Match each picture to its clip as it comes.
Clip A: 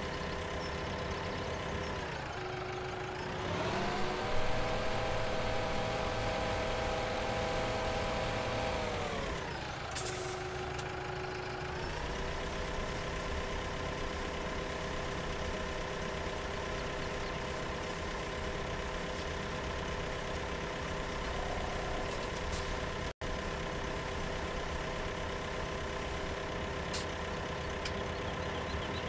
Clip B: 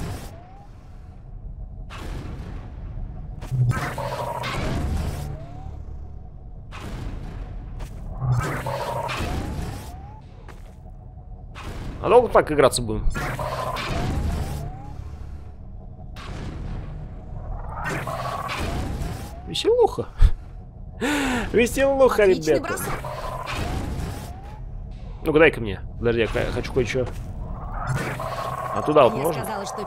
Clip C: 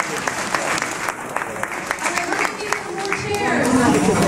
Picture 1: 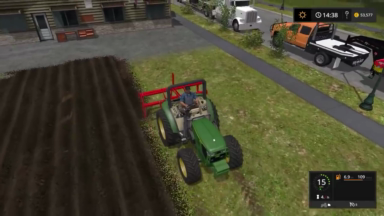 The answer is A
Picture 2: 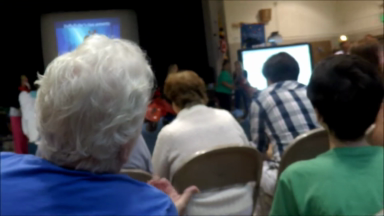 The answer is C